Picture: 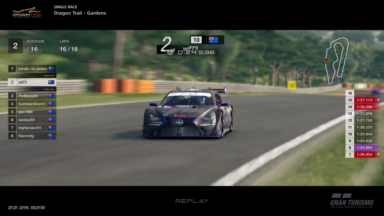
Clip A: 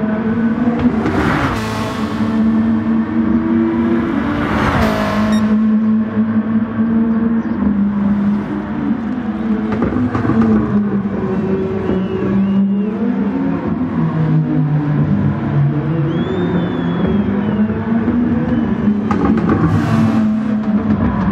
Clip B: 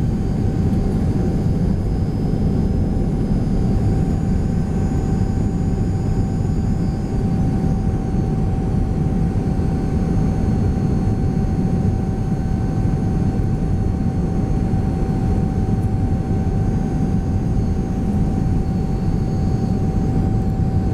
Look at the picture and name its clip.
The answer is A